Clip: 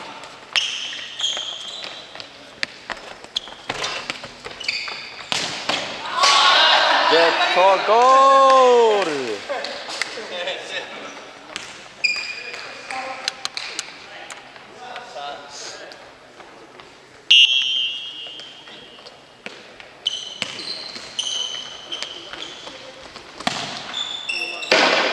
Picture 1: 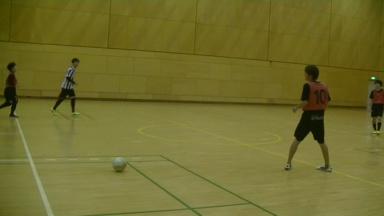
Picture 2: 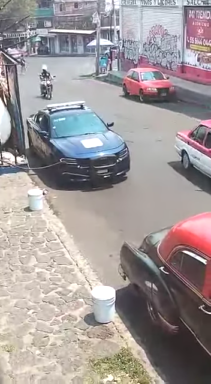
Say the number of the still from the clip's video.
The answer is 1